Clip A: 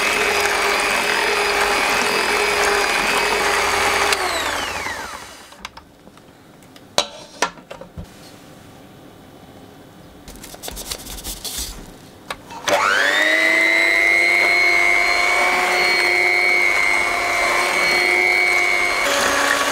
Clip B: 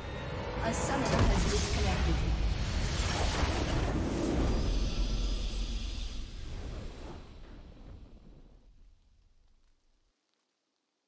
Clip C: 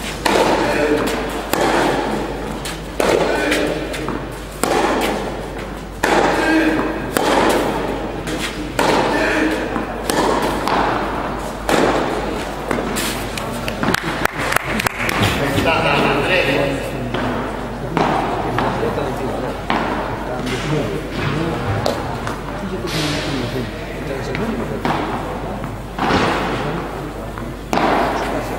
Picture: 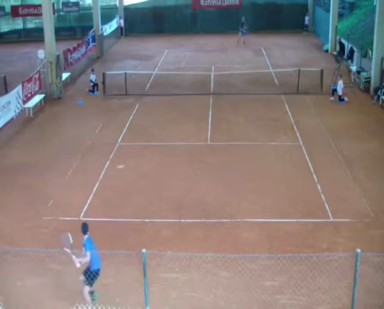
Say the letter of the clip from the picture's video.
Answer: C